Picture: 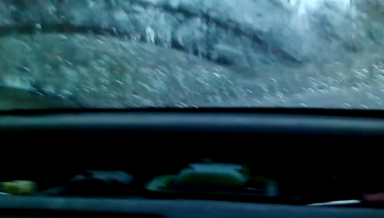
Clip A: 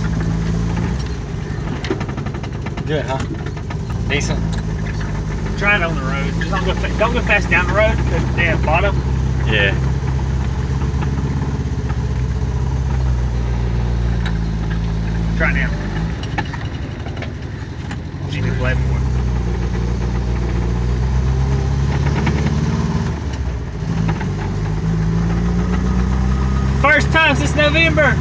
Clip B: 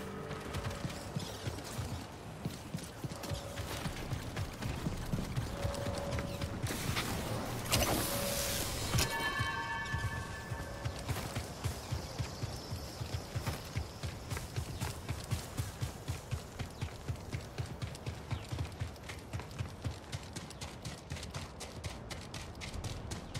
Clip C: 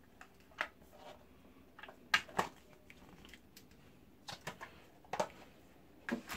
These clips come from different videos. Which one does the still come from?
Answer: A